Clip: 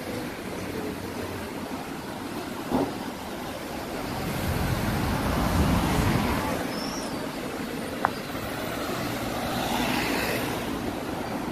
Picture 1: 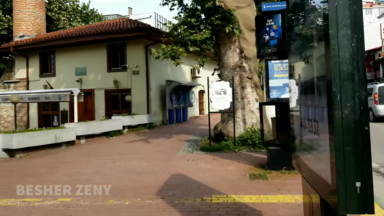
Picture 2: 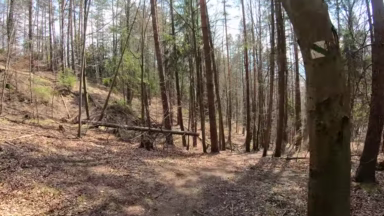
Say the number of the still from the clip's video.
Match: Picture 1